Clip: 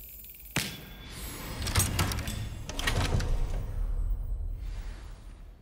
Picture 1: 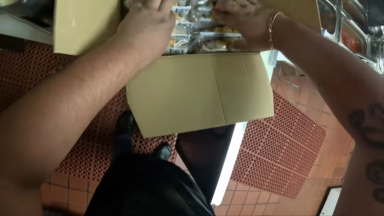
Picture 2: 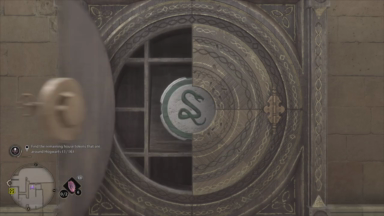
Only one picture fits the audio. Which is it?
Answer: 2